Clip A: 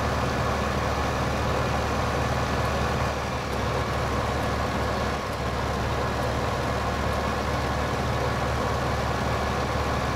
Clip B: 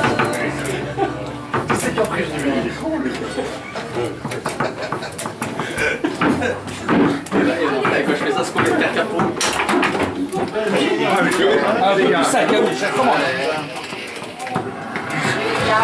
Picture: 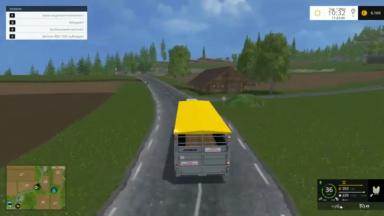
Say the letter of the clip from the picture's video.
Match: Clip A